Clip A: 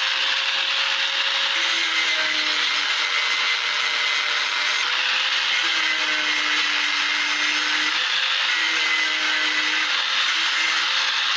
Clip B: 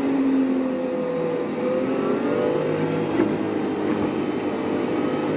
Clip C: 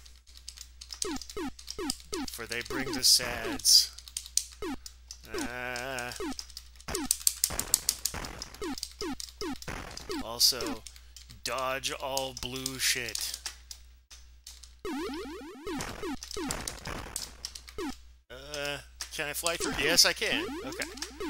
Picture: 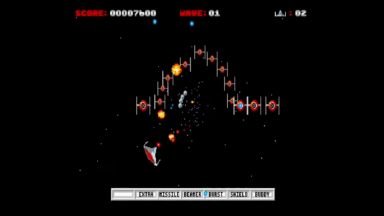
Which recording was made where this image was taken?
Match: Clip C